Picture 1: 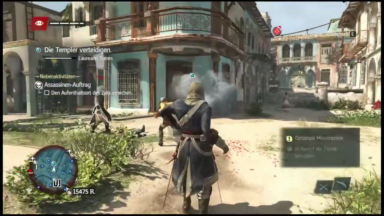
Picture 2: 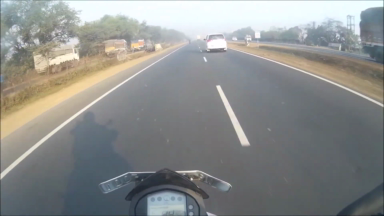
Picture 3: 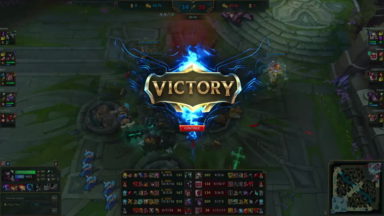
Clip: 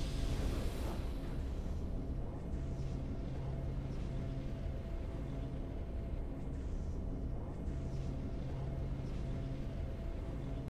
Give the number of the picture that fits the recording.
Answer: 3